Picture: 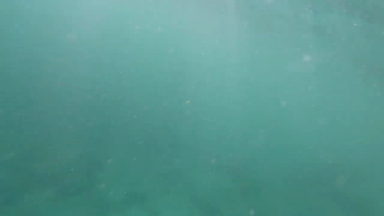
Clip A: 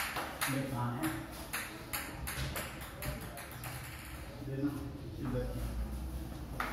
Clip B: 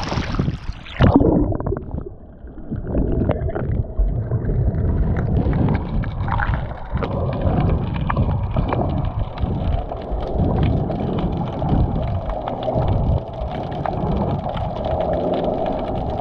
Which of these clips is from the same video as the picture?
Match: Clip B